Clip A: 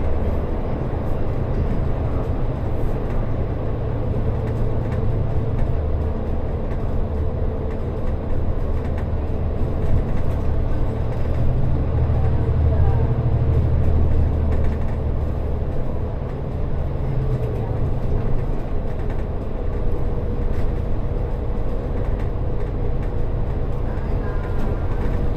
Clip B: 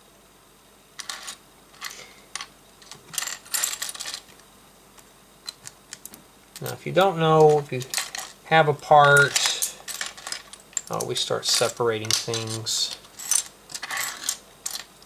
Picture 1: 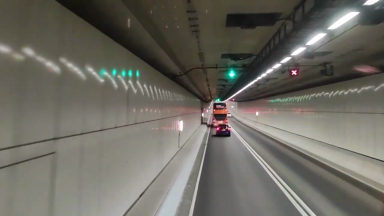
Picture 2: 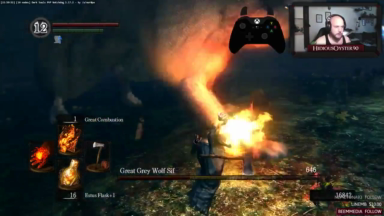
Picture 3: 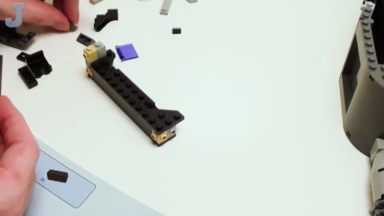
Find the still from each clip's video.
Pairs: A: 1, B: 3